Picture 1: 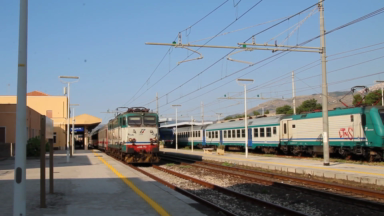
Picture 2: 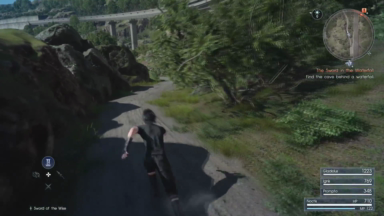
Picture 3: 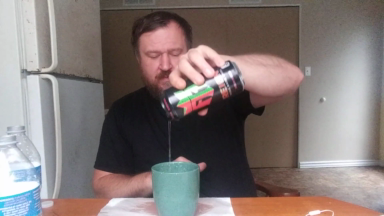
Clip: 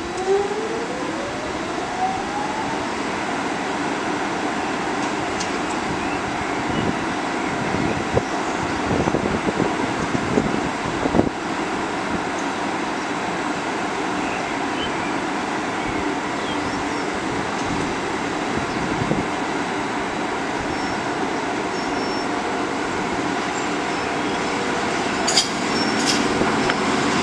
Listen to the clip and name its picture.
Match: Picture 1